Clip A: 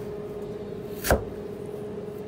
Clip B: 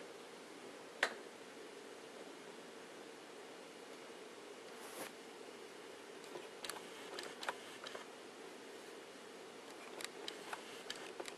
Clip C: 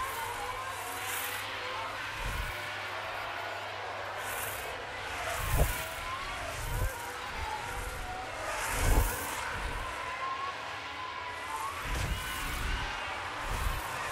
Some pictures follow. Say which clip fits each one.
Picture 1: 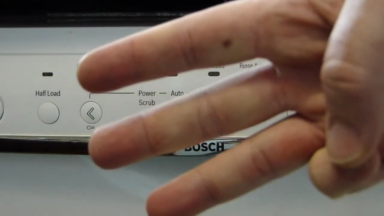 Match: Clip B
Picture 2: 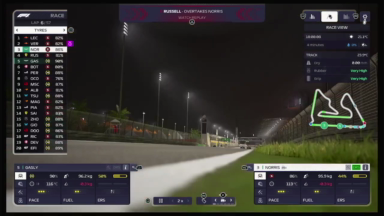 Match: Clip C